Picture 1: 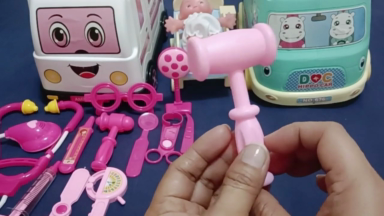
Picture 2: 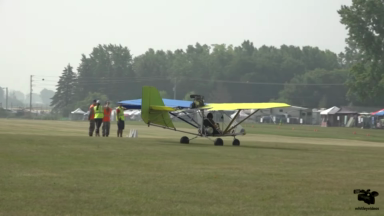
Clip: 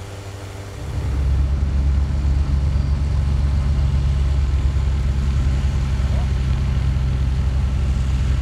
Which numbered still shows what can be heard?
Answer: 2